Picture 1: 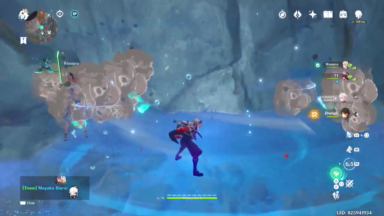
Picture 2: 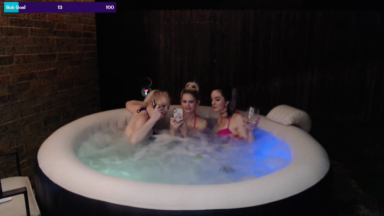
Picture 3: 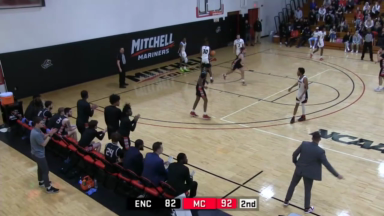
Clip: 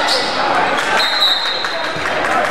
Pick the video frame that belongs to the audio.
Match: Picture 3